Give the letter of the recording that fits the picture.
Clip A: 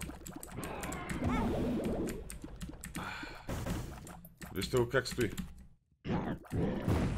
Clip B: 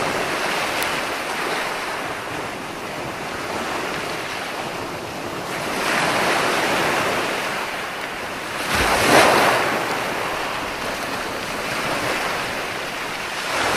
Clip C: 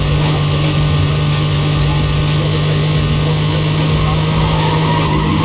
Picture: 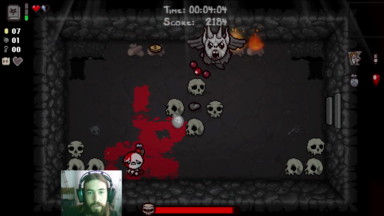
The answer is A